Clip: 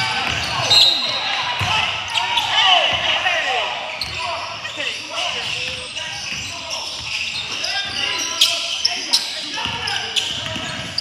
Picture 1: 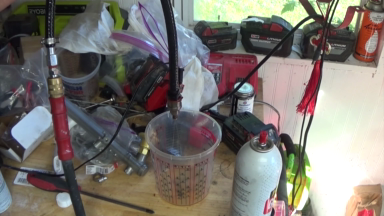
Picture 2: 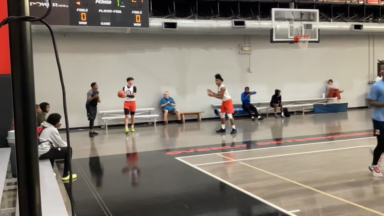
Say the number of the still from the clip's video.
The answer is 2